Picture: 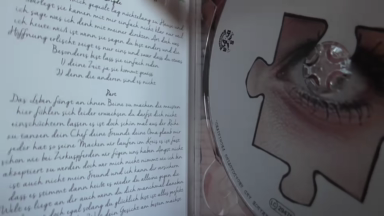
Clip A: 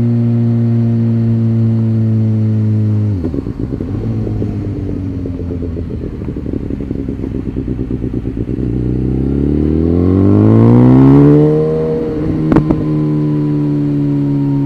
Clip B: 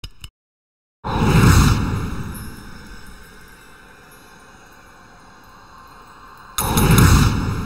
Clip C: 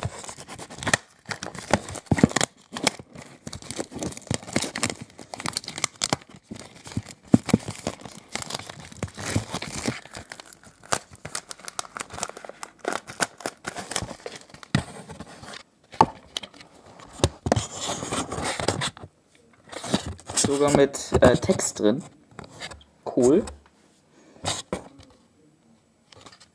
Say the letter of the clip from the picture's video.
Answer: C